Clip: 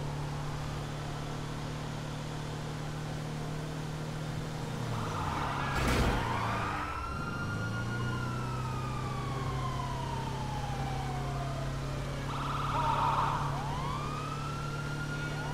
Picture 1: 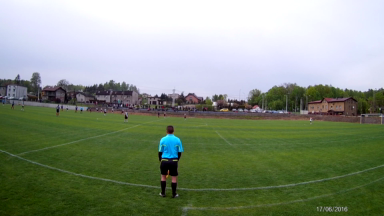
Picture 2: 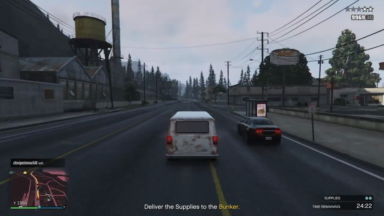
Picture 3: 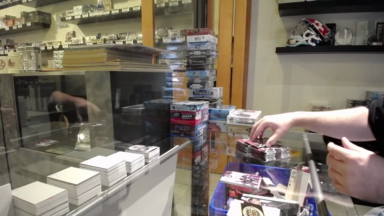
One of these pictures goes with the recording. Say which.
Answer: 2